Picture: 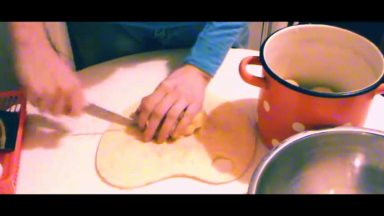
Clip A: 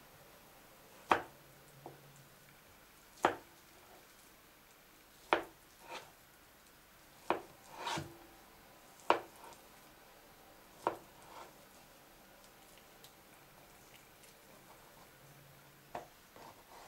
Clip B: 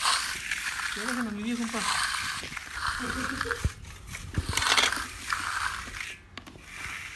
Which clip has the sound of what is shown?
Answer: A